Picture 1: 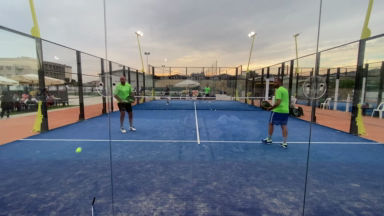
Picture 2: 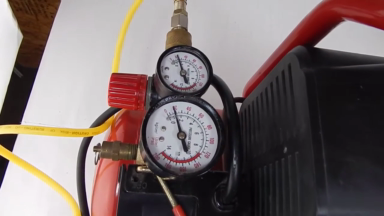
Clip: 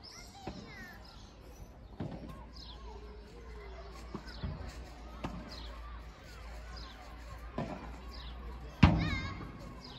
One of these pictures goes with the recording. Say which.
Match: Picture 1